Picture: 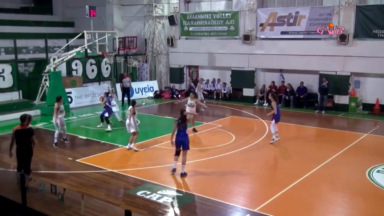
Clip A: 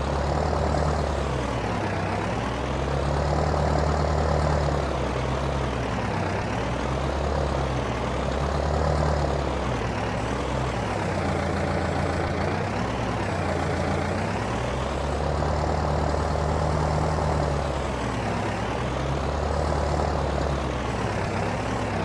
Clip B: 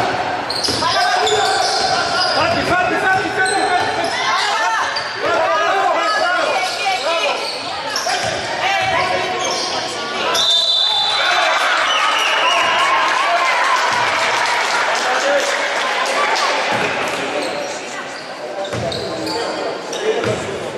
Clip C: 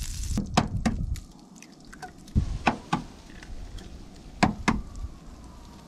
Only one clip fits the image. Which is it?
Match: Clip B